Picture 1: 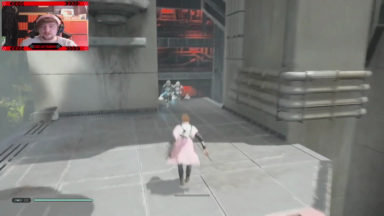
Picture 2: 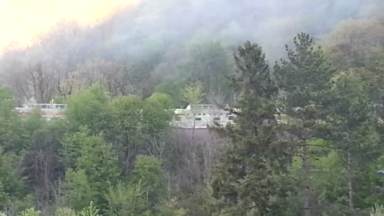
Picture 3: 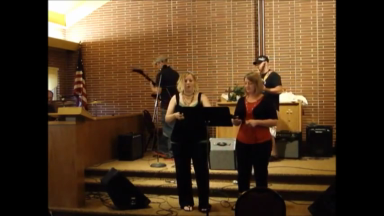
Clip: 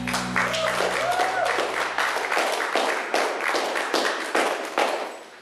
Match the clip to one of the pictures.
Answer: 3